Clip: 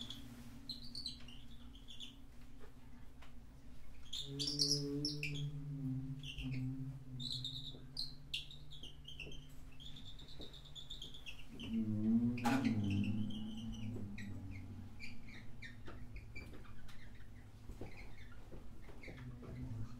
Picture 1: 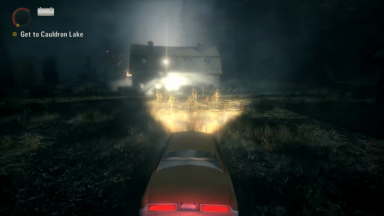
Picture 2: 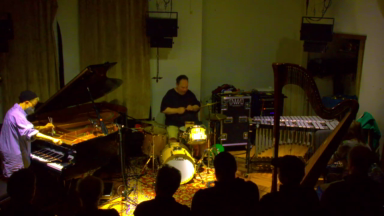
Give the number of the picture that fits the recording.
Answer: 2